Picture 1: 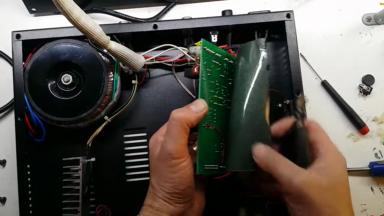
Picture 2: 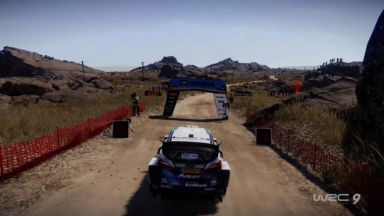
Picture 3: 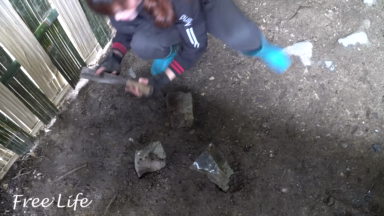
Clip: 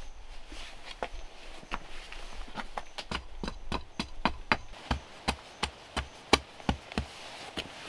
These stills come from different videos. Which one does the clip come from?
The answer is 3